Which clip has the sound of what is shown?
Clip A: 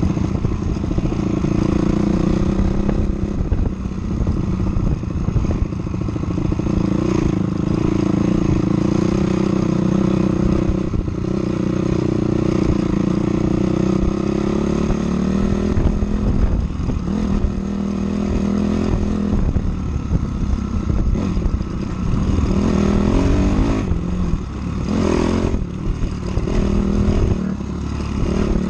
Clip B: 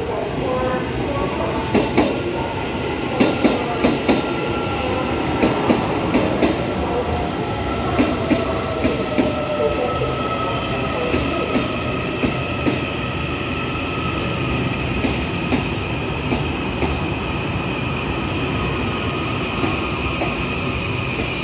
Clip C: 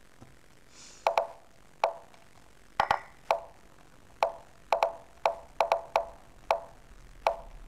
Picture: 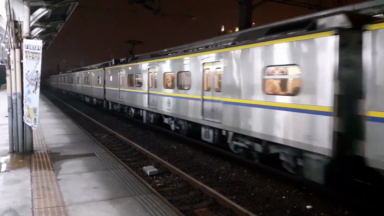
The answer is B